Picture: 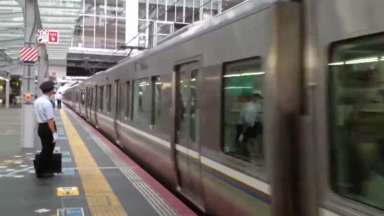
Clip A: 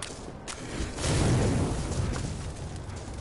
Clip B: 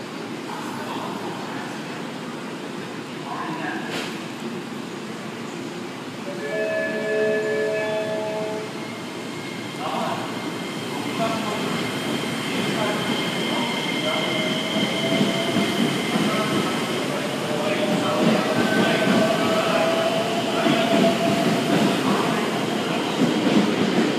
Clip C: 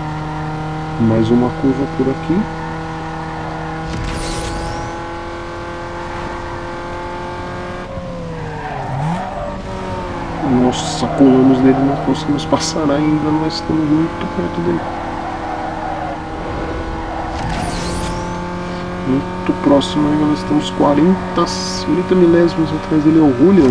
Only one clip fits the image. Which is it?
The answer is B